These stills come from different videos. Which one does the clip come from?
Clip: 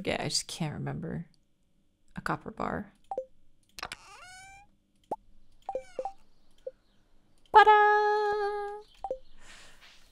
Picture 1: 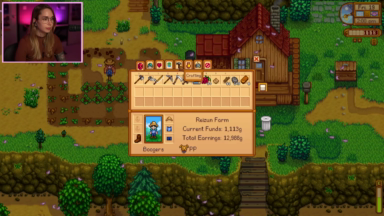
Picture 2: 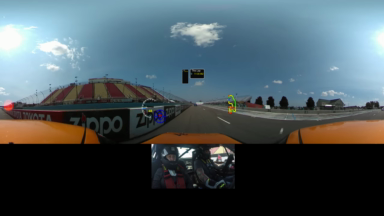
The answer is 1